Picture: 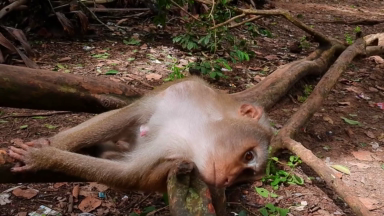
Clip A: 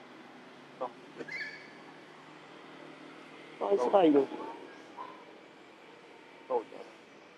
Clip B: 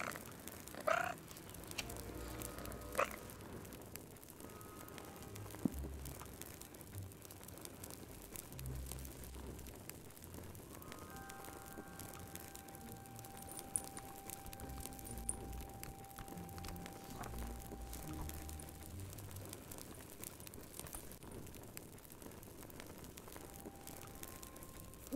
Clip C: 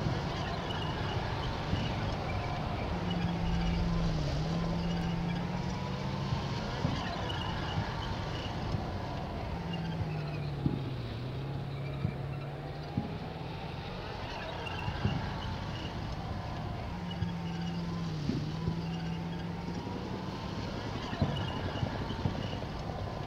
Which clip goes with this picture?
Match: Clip A